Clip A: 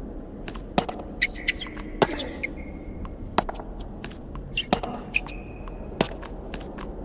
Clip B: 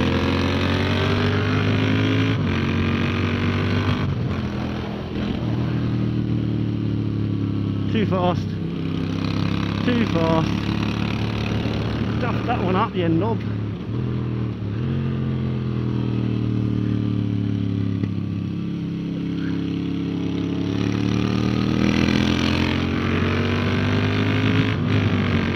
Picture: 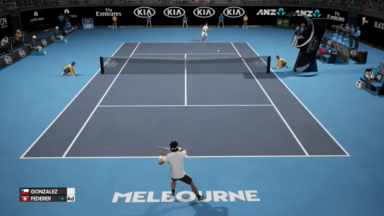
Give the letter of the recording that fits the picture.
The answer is A